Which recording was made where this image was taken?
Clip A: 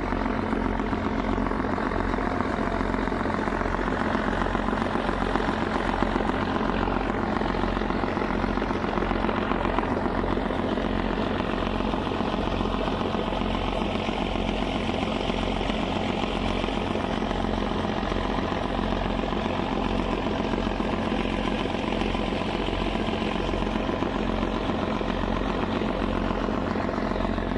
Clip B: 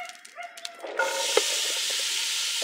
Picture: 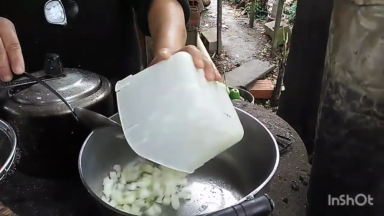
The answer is B